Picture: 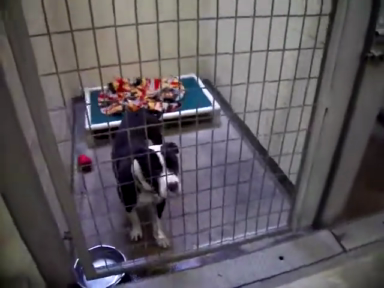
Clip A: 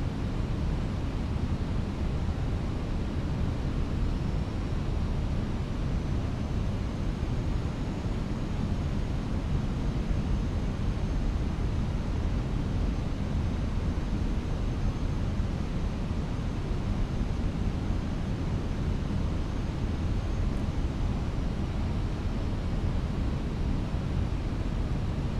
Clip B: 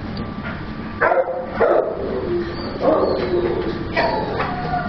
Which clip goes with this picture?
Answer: B